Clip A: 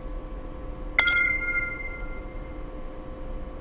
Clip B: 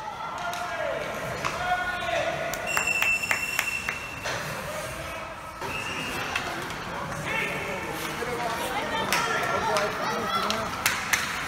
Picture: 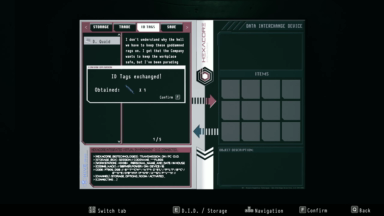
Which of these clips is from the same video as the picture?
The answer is A